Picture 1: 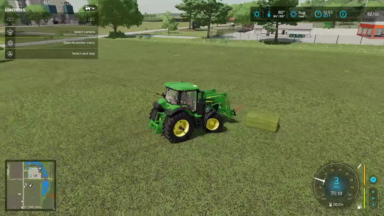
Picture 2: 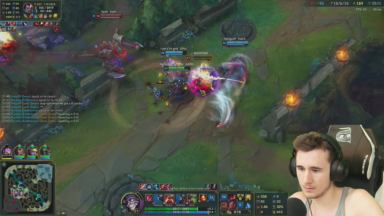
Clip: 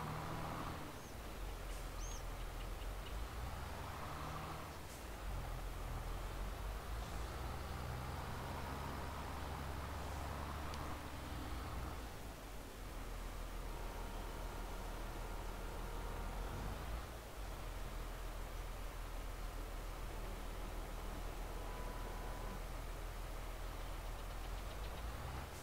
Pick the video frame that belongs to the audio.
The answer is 1